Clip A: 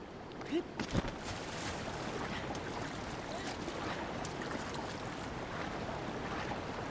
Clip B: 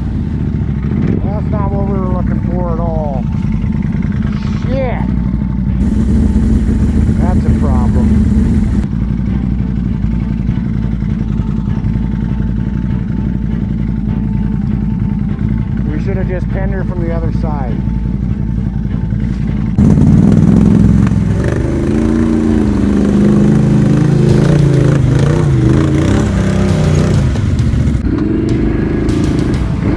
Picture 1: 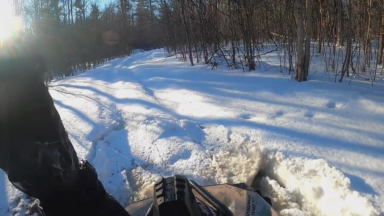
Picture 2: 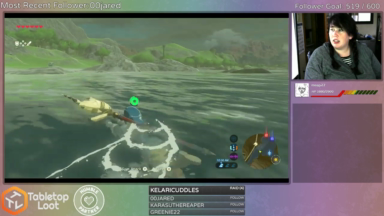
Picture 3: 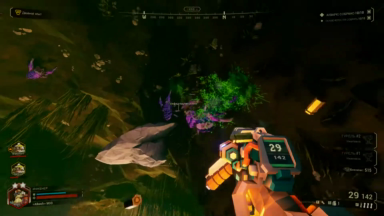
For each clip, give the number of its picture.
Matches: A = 2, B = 1